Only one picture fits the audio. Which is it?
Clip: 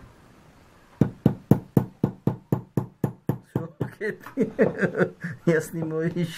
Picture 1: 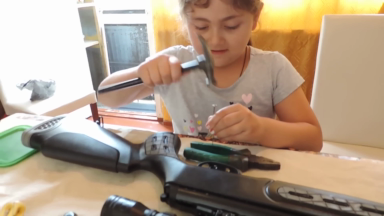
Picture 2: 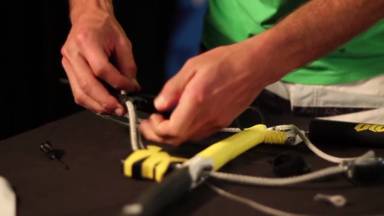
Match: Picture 1